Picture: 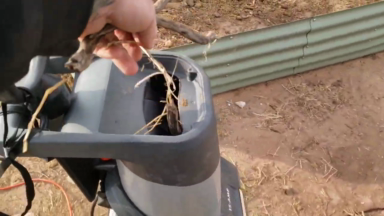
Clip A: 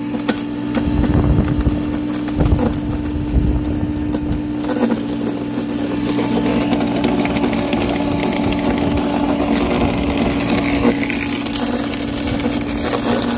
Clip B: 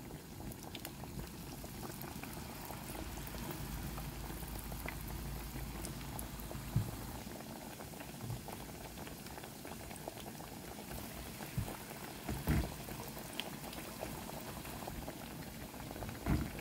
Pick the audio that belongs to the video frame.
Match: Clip A